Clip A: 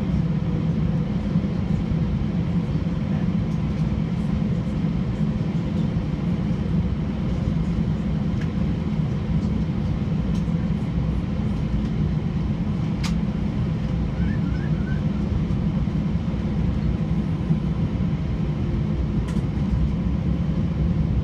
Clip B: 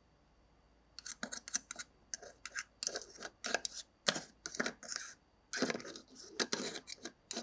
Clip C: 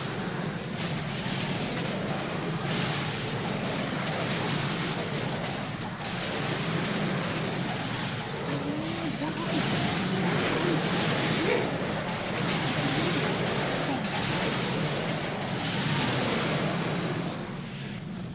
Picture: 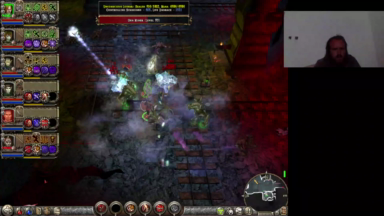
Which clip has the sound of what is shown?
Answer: C